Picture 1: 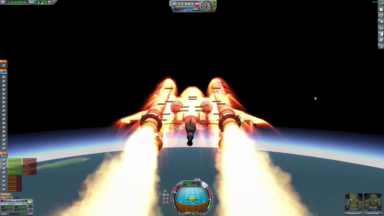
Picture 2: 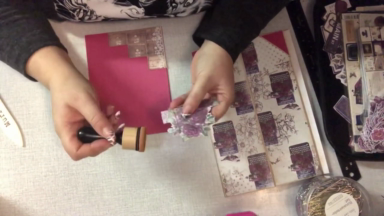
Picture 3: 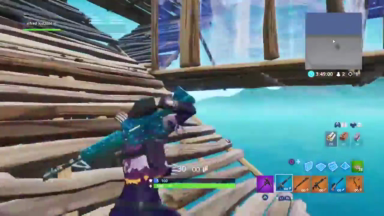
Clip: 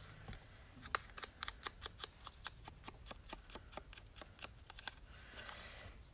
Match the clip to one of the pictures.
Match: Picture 2